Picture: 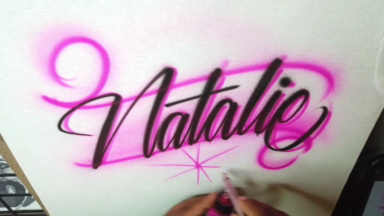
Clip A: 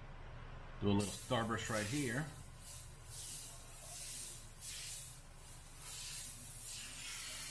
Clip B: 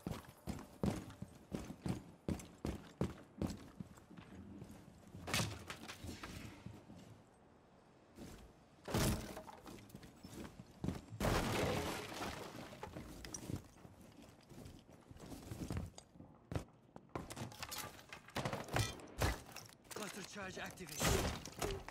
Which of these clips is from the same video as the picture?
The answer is A